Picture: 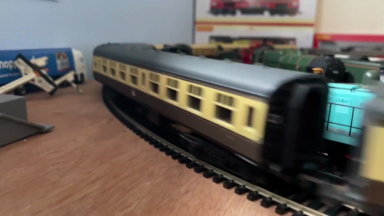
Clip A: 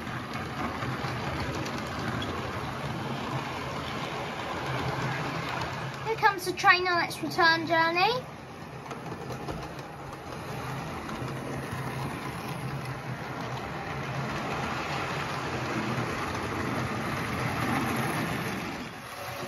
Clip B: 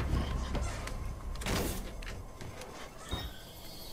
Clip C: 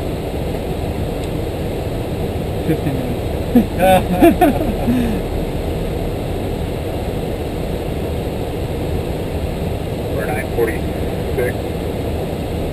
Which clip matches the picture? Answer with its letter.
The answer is A